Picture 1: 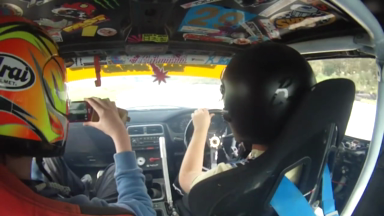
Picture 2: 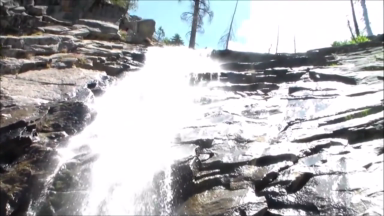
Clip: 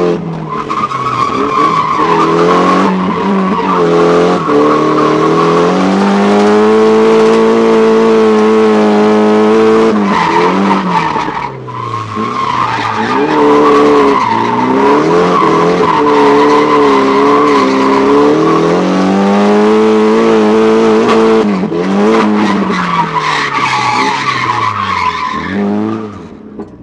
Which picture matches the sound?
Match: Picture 1